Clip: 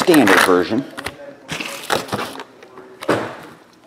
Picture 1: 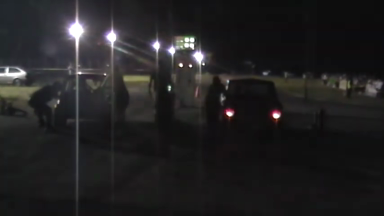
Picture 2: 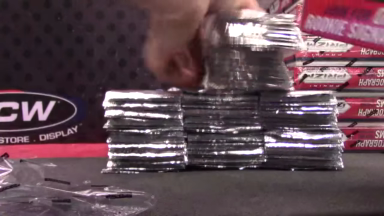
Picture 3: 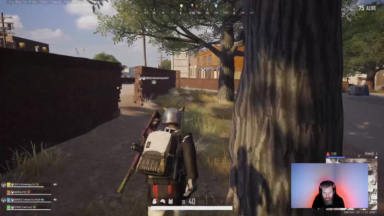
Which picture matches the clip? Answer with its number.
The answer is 2